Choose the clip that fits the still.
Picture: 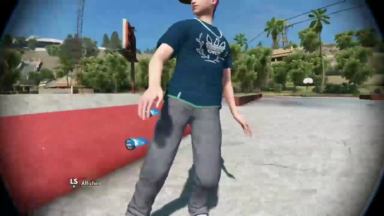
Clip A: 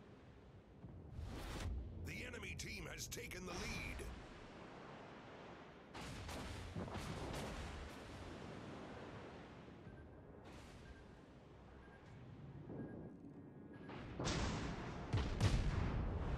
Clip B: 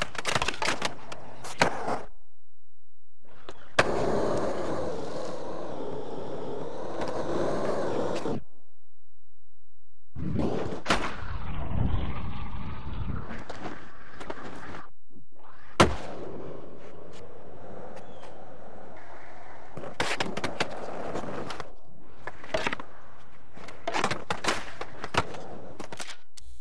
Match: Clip B